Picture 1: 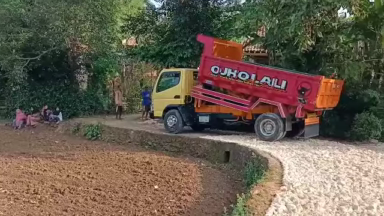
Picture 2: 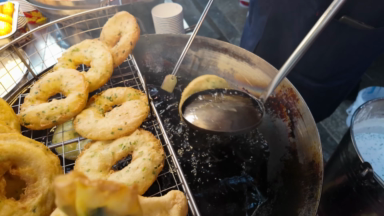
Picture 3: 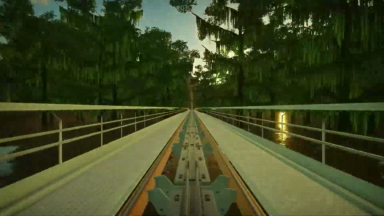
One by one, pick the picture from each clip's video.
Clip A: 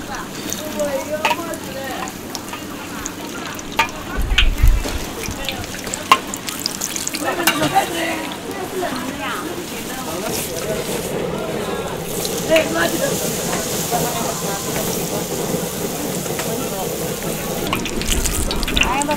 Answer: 2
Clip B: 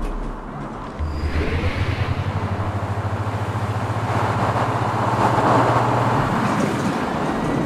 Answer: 3